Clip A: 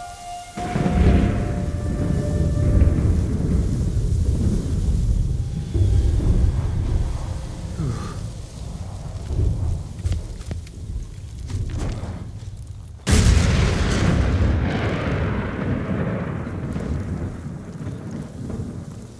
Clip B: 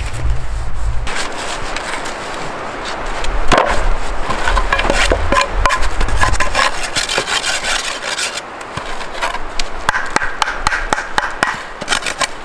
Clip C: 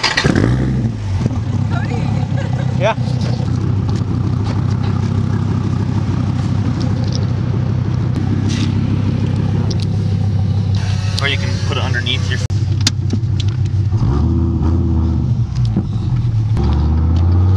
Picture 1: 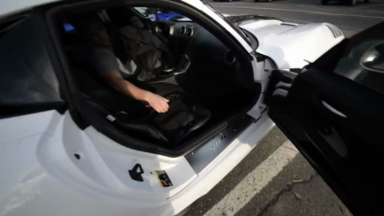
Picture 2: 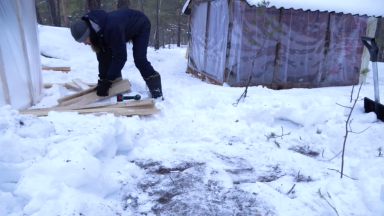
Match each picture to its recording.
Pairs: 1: C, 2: B